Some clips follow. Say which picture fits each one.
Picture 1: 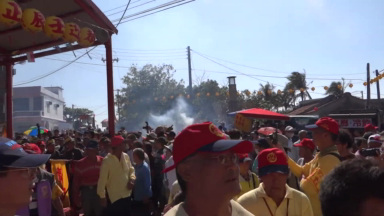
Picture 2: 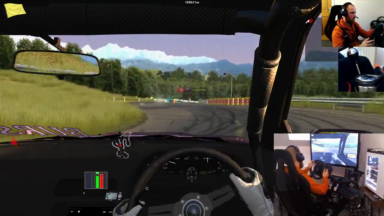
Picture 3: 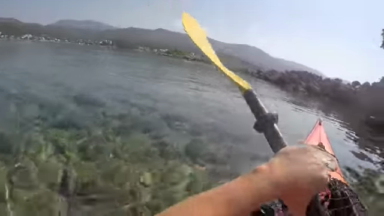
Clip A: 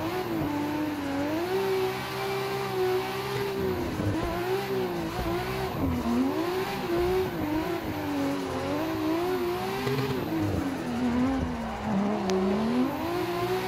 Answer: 2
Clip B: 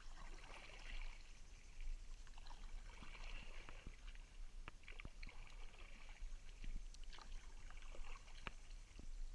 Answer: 3